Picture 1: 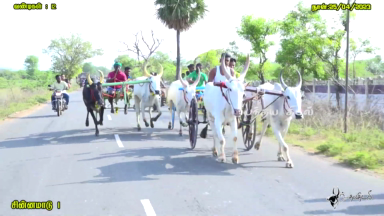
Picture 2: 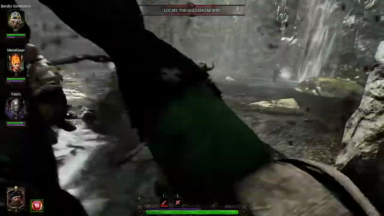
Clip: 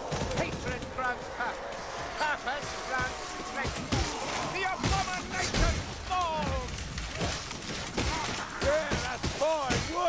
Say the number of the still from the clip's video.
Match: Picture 2